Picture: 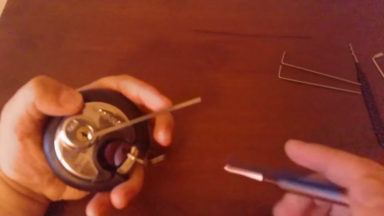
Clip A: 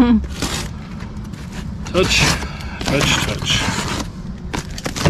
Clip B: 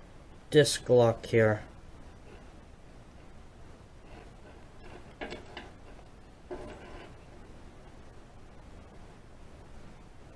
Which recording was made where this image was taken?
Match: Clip B